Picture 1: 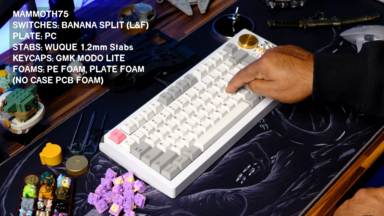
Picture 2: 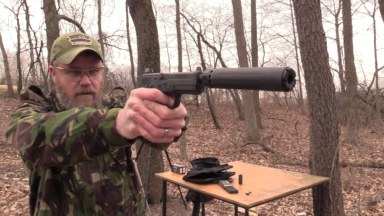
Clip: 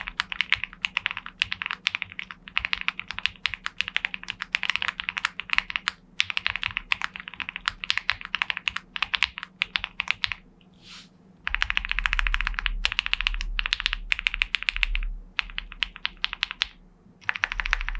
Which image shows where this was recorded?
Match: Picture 1